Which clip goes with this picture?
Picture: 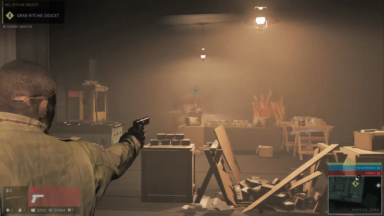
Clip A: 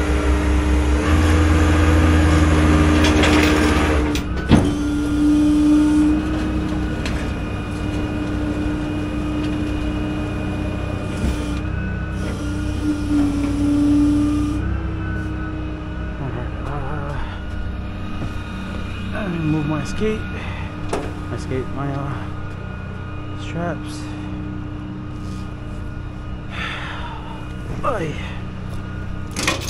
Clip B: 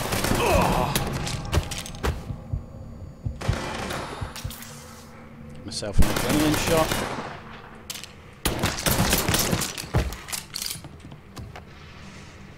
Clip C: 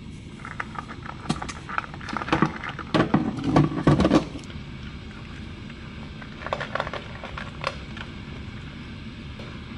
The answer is B